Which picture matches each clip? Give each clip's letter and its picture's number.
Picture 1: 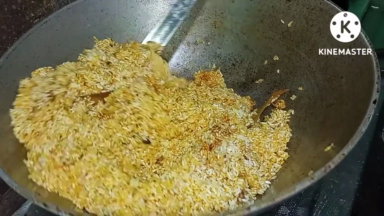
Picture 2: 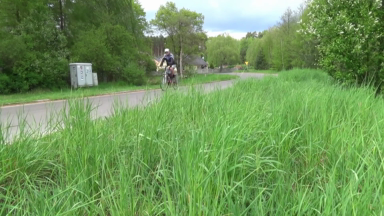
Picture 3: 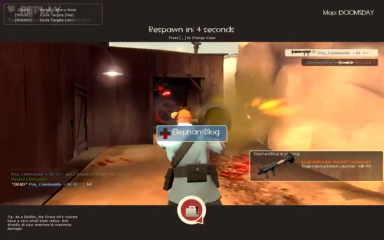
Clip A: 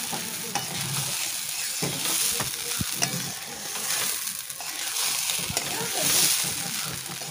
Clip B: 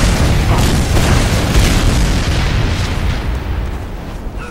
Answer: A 1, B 3